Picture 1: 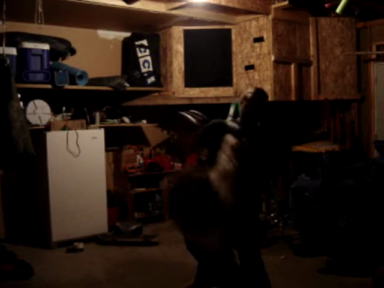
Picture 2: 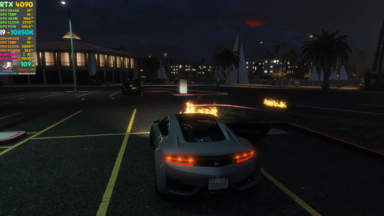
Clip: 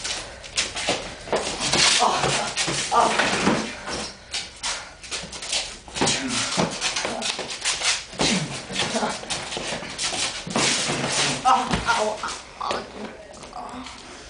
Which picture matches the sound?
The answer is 1